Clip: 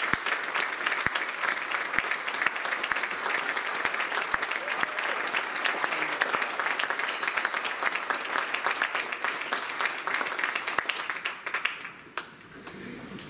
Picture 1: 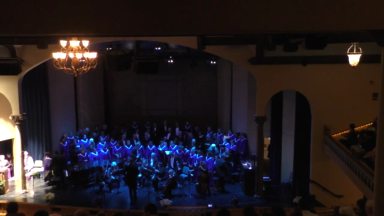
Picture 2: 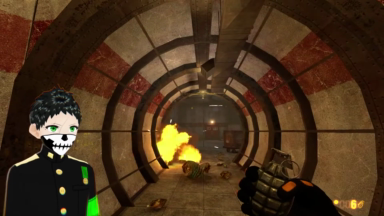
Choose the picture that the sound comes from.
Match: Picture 1